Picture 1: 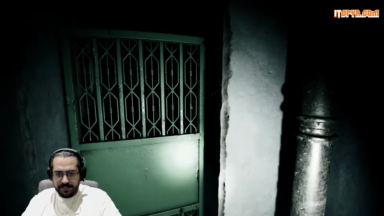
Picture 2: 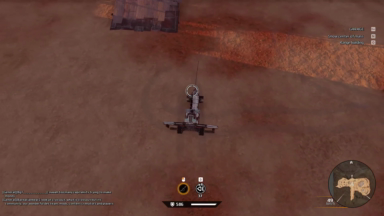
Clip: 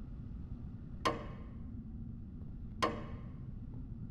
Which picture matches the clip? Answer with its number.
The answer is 1